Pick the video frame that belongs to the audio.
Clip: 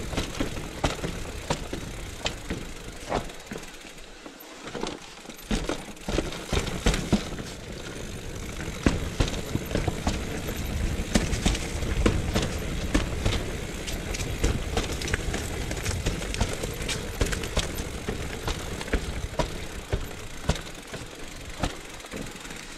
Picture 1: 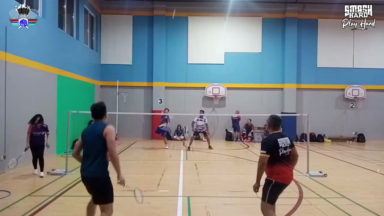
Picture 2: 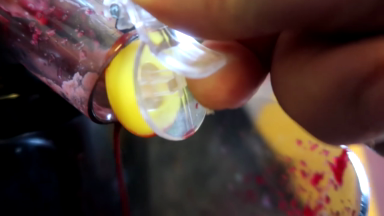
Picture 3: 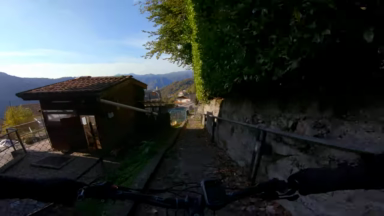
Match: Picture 3